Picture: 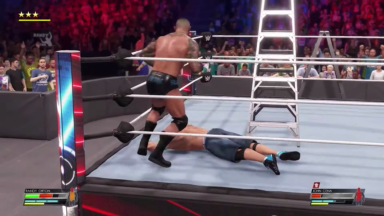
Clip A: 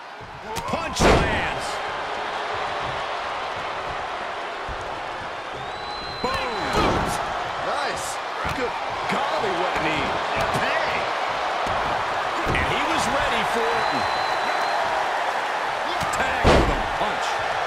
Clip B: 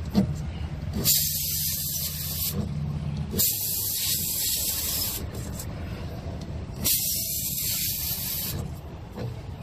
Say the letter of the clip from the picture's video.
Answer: A